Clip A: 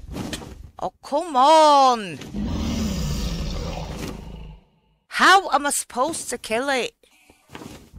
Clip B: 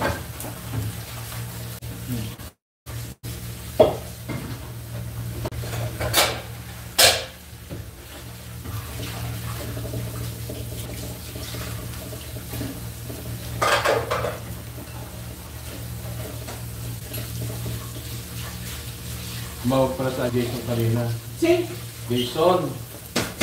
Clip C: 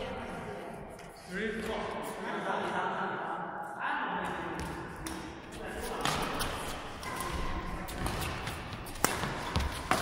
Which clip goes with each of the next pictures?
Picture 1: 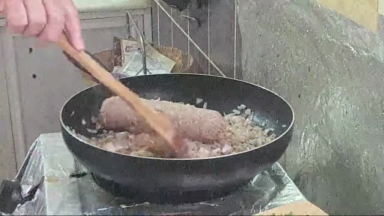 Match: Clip B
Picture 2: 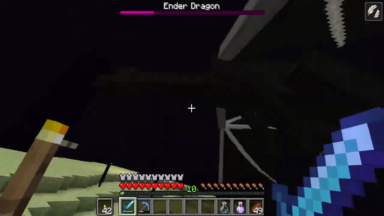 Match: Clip A